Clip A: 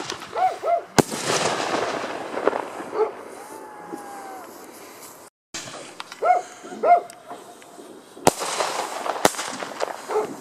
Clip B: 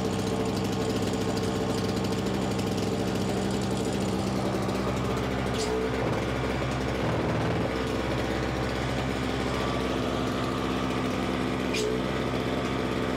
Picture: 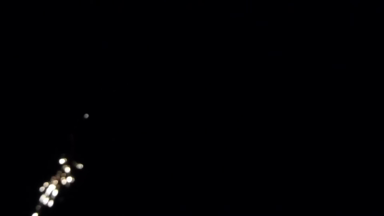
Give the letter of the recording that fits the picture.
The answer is A